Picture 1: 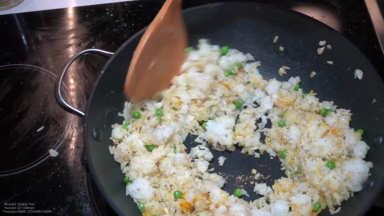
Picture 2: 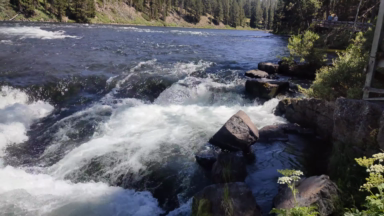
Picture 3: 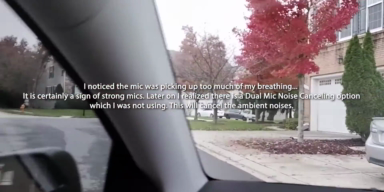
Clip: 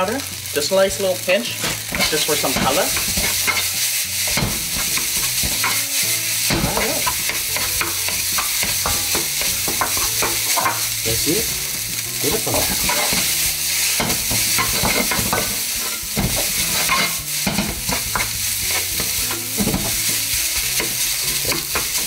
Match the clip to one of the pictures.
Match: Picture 1